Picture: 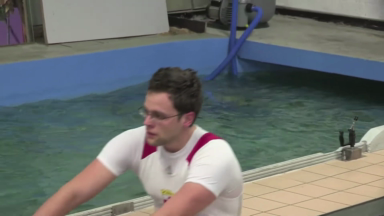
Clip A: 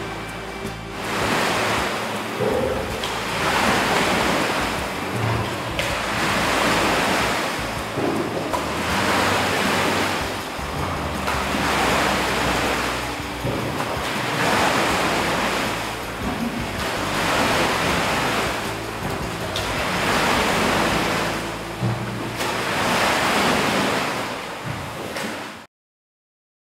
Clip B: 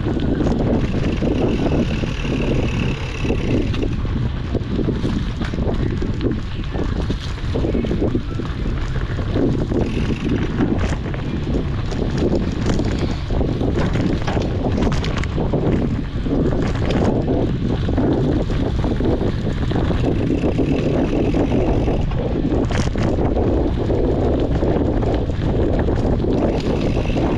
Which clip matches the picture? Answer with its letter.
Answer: A